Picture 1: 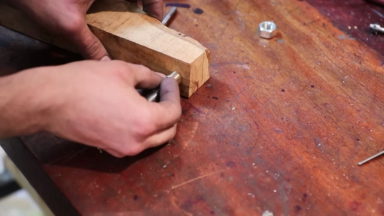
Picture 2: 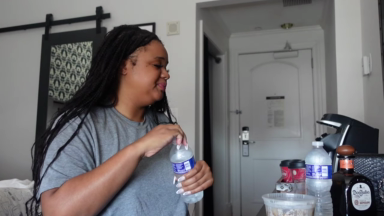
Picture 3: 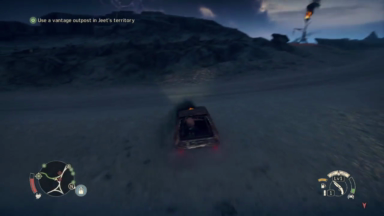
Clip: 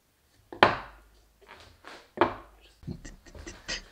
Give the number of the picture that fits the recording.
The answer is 1